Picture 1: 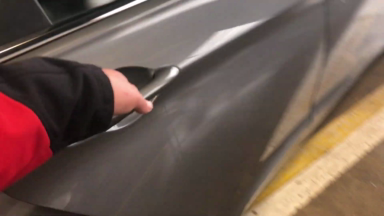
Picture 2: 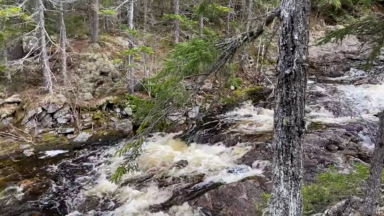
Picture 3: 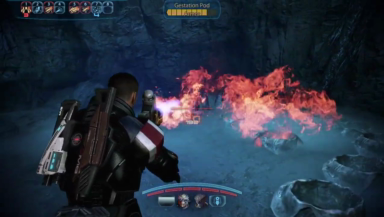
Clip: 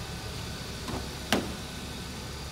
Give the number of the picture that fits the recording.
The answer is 1